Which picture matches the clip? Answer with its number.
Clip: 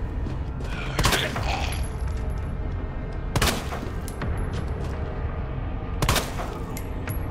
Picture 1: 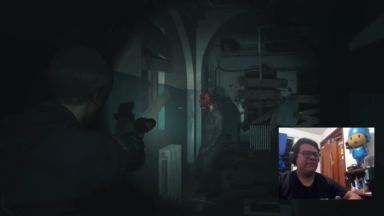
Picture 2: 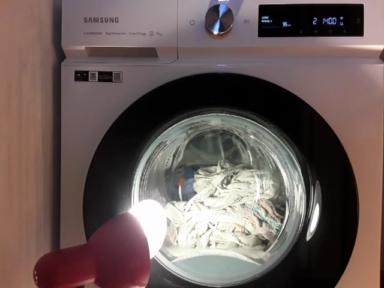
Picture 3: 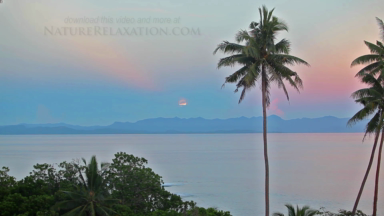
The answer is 1